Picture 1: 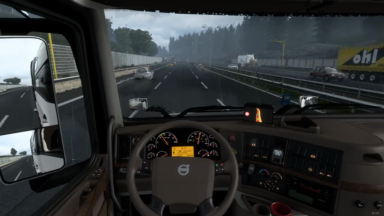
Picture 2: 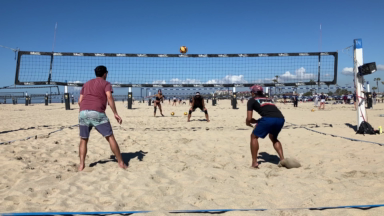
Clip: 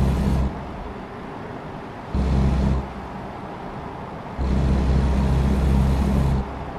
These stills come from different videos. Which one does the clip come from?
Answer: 1